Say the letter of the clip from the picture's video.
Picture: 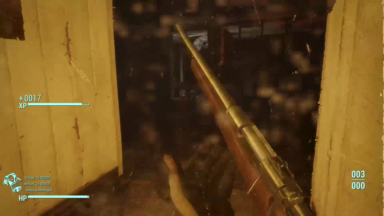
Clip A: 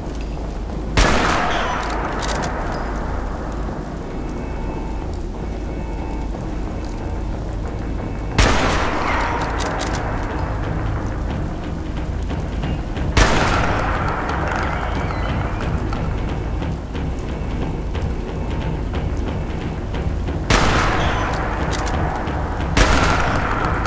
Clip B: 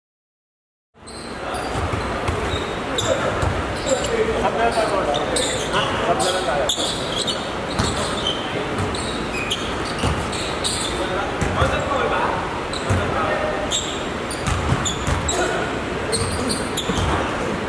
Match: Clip A